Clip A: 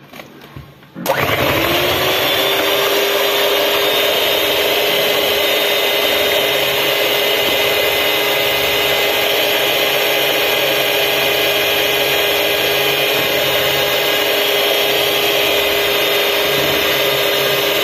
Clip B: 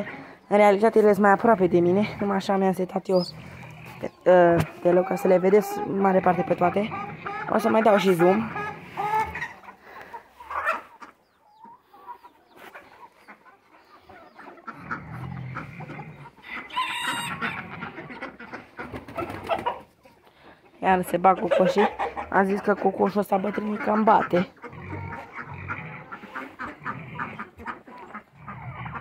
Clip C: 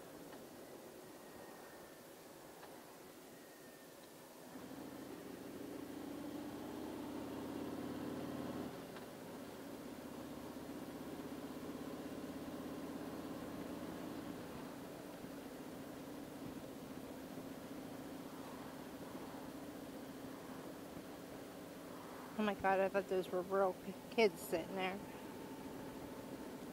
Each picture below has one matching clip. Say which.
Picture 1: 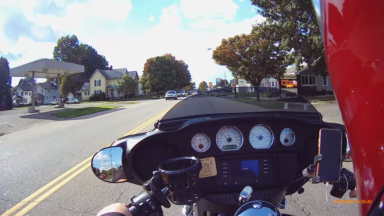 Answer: C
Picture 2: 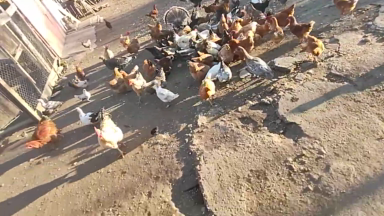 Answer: B